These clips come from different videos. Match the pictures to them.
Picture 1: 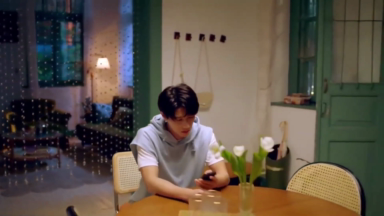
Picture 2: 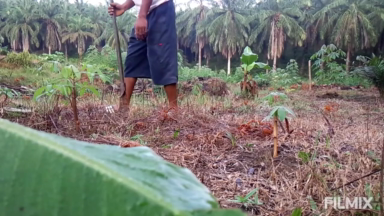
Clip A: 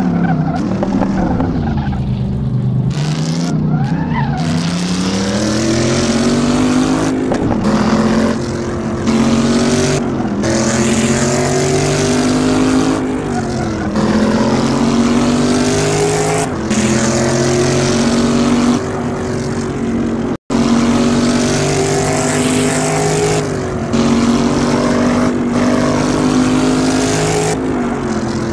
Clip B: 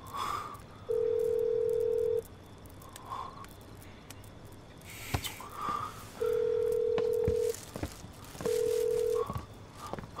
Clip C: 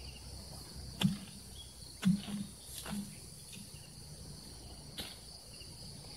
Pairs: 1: B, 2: C